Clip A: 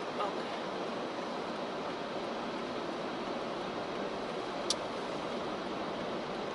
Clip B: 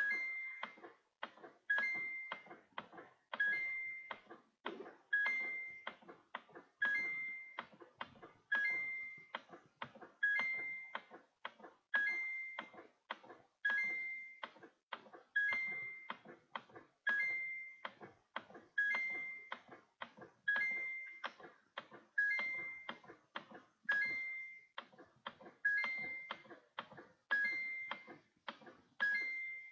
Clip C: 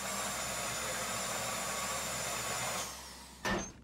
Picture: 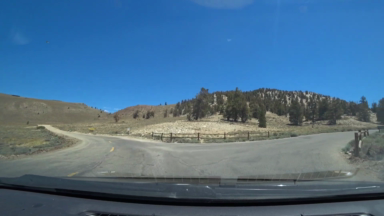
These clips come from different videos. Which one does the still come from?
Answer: A